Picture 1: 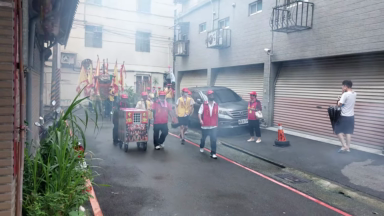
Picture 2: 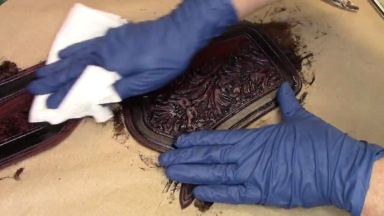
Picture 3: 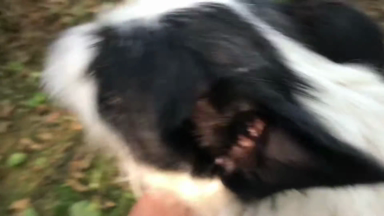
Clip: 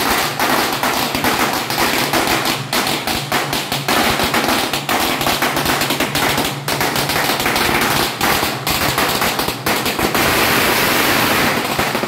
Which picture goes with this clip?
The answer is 1